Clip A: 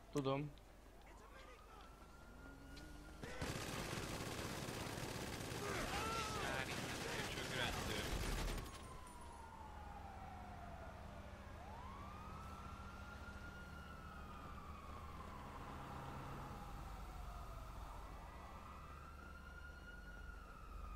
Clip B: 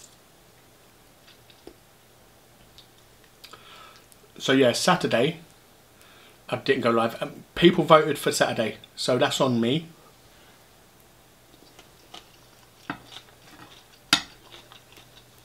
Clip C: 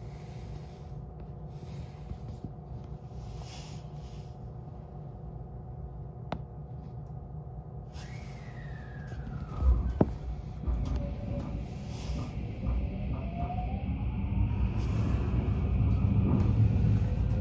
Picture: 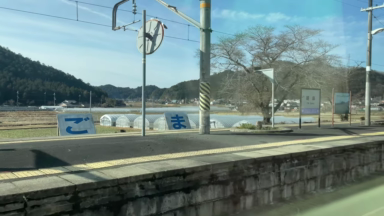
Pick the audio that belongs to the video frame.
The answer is C